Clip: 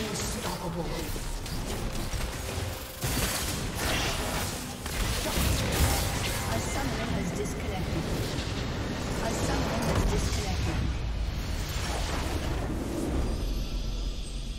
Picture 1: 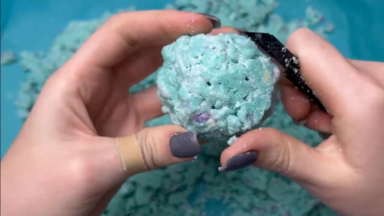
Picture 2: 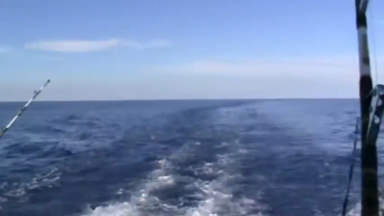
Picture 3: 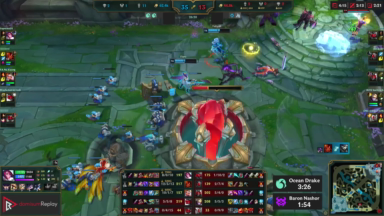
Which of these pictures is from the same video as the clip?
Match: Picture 3